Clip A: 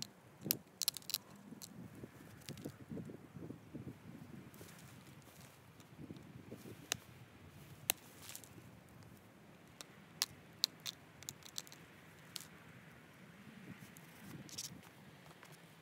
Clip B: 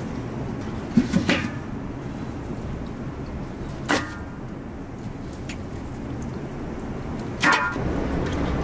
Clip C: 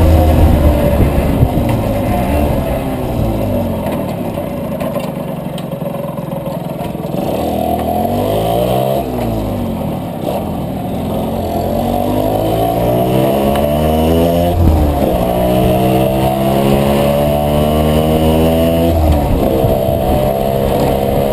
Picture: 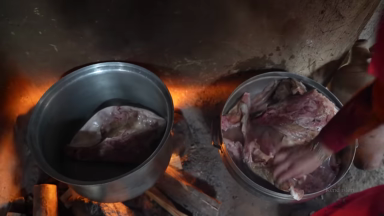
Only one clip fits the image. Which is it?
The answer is B